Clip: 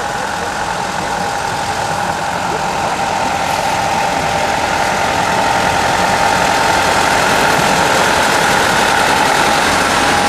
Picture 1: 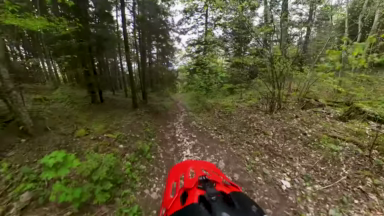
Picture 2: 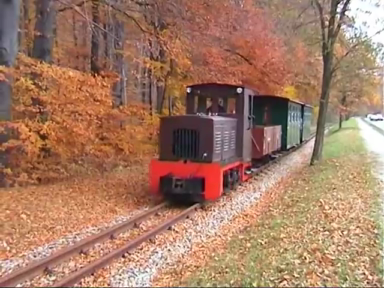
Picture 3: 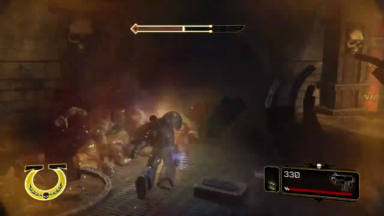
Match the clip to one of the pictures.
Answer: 2